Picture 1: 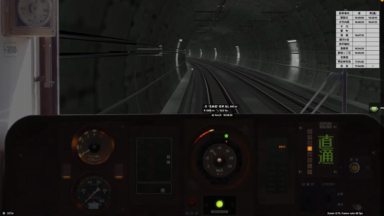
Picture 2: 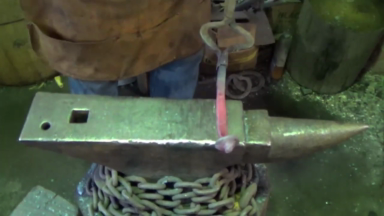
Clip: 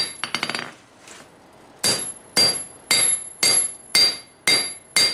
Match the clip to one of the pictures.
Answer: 2